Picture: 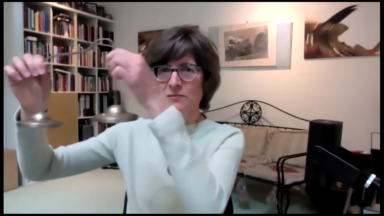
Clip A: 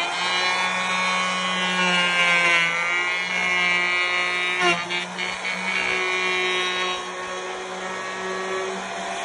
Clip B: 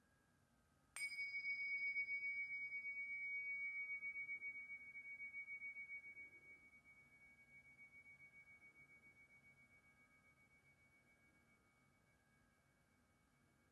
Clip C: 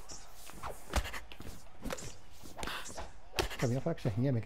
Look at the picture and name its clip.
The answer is B